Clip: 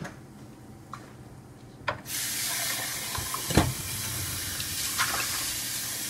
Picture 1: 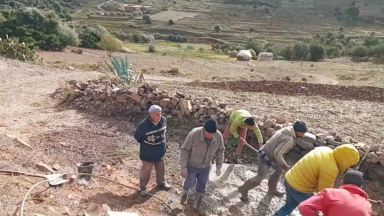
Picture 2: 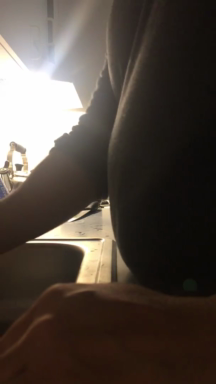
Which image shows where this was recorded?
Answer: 2